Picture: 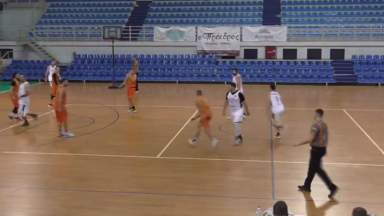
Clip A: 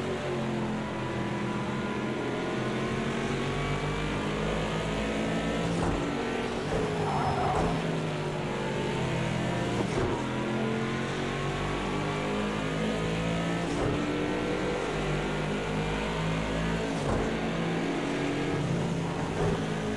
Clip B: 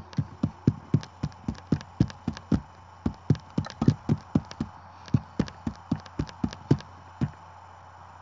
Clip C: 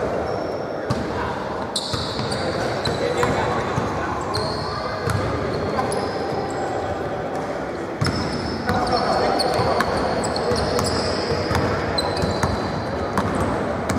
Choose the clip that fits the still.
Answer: C